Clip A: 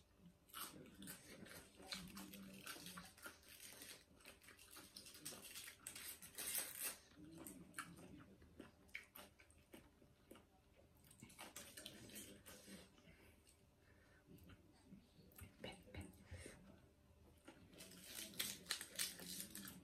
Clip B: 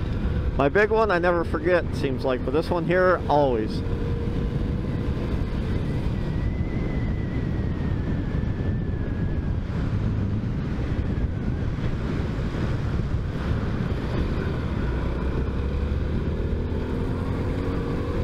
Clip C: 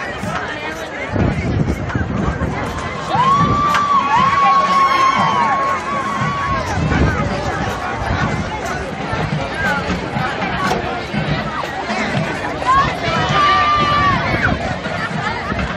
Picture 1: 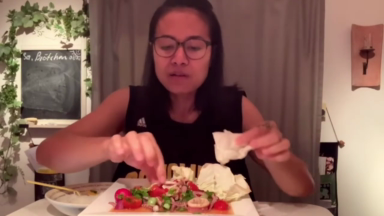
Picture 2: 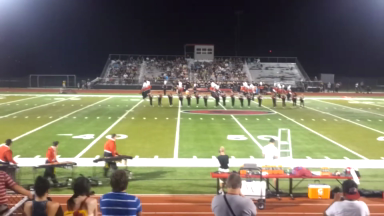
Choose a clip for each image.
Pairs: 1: A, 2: C